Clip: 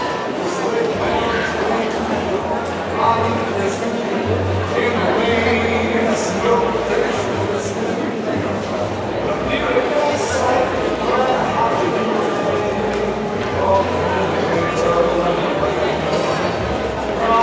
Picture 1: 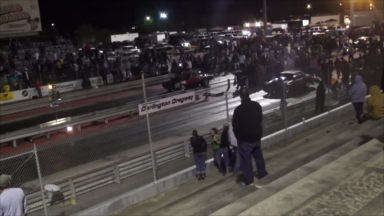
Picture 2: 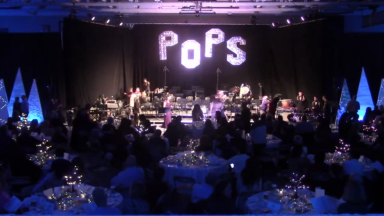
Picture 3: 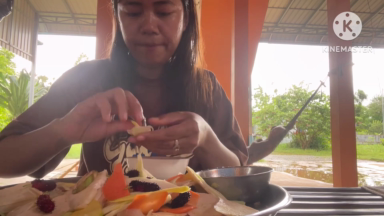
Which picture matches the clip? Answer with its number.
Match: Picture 2